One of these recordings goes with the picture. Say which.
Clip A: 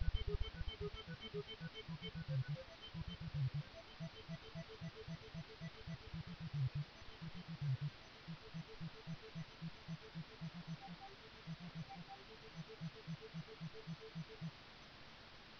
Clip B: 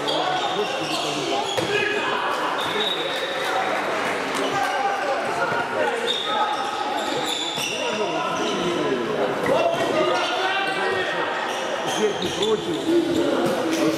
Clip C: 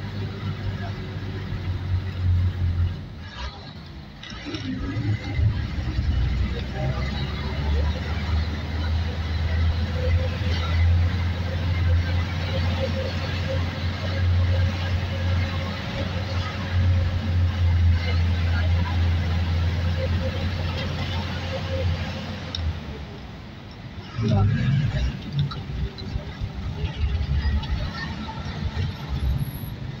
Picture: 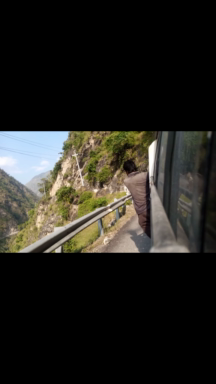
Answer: C